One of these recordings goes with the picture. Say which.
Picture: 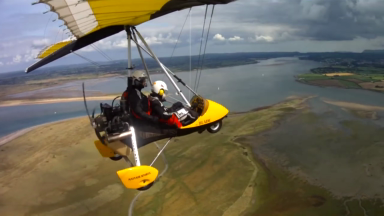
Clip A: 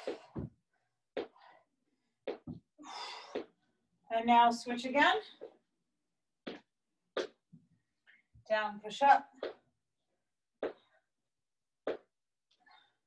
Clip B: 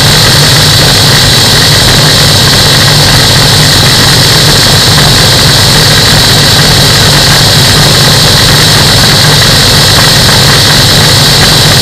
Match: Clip B